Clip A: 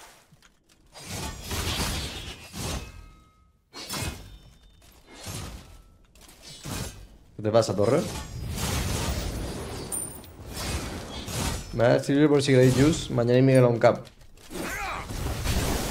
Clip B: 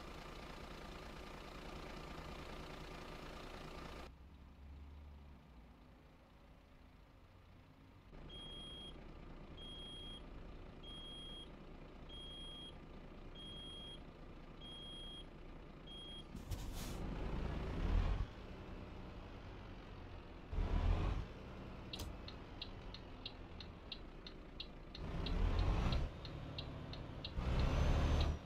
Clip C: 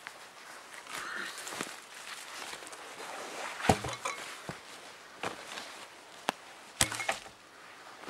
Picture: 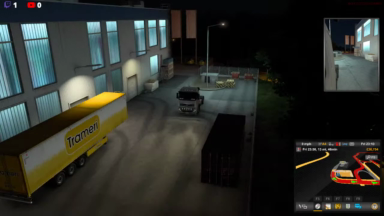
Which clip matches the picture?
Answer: B